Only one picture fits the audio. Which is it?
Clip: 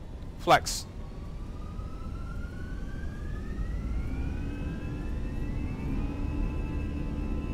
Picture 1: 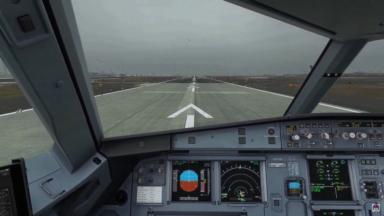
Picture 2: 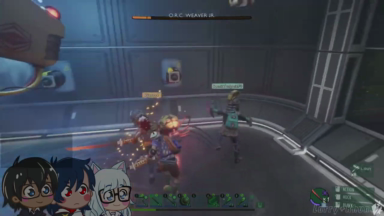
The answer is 1